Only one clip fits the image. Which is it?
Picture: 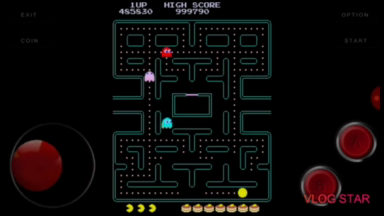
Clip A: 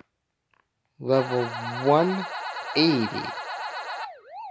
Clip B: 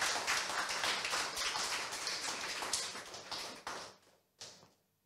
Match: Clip A